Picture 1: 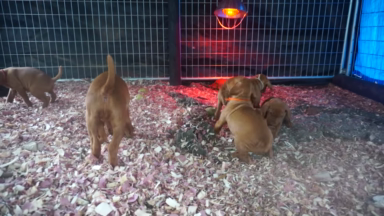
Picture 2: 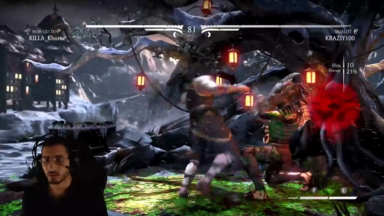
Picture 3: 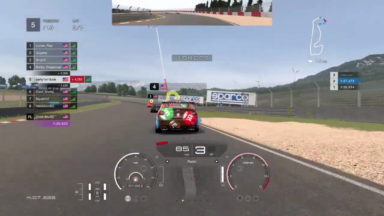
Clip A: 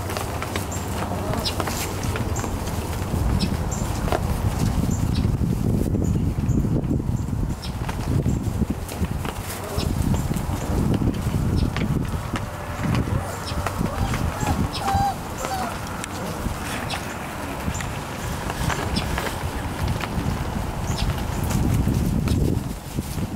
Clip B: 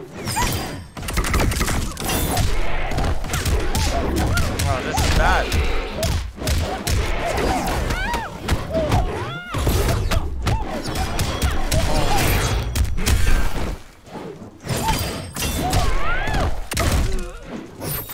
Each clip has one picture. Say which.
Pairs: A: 1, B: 2